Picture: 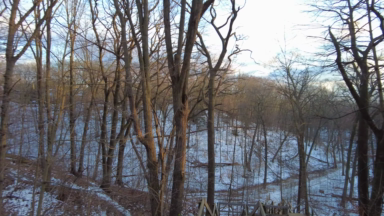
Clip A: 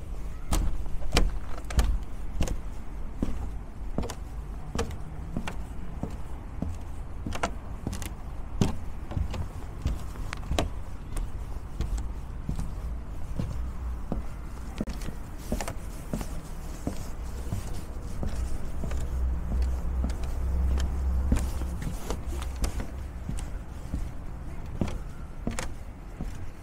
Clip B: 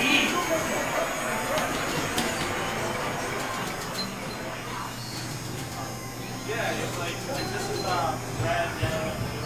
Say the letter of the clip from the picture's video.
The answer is A